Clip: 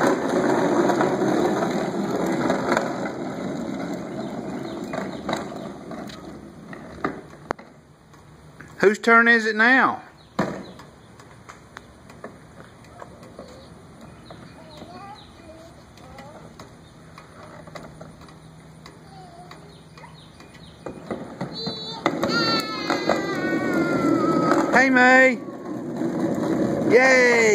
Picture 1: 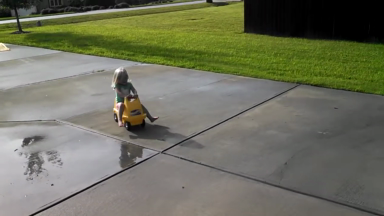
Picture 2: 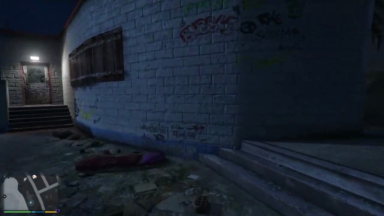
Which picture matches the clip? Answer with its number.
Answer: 1